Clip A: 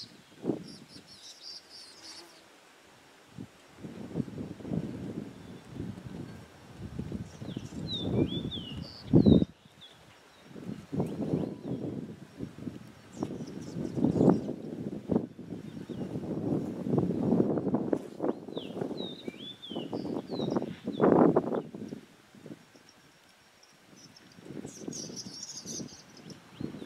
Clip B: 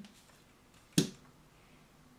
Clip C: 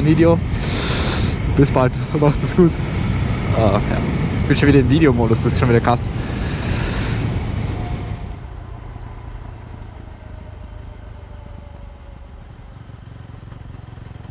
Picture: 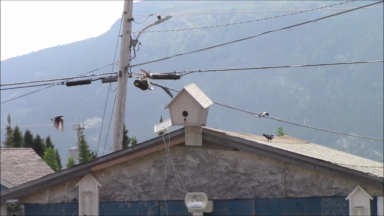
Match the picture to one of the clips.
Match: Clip A